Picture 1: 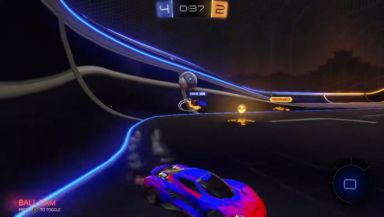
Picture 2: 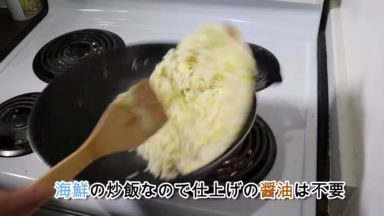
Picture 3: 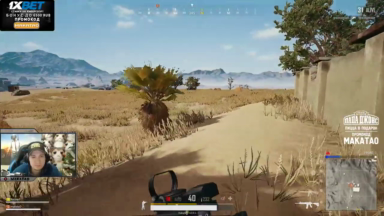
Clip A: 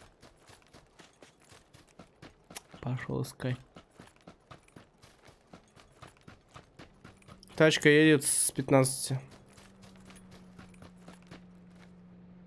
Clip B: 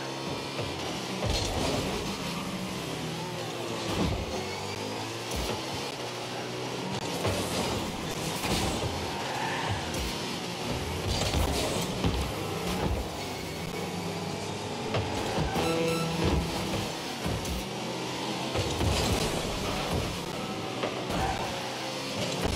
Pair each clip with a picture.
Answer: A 3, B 1